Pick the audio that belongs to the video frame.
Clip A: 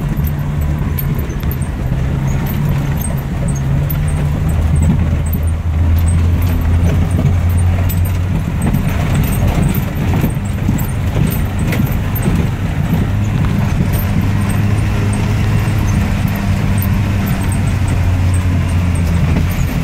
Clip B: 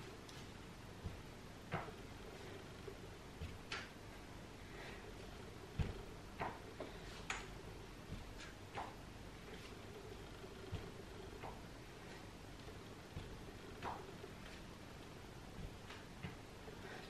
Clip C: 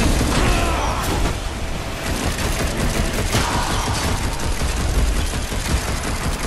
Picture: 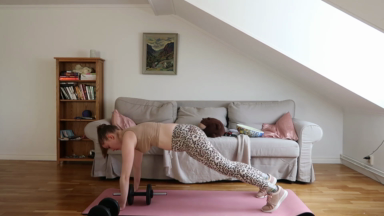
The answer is B